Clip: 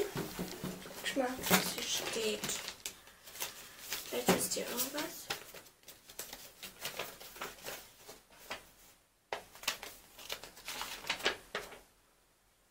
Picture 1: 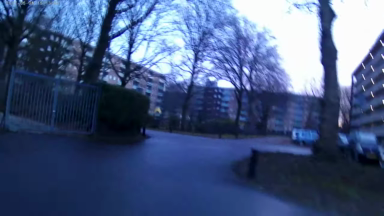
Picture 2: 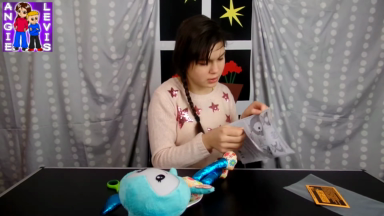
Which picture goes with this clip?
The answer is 2